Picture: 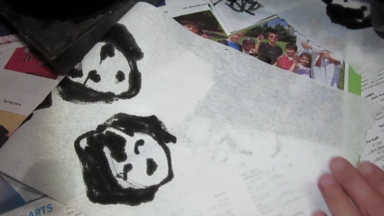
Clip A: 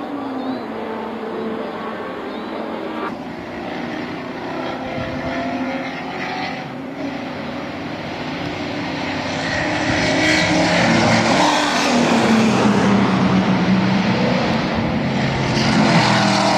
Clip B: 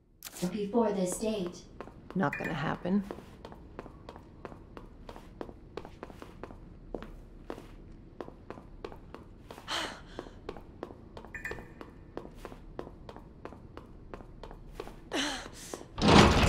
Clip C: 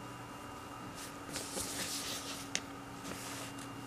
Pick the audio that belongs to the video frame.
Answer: C